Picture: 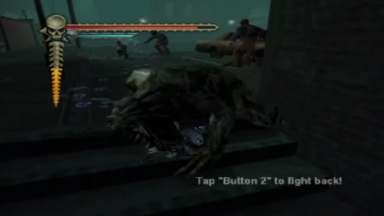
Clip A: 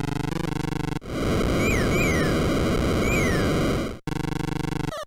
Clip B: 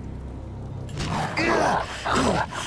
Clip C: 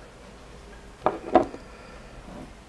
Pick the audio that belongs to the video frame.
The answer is B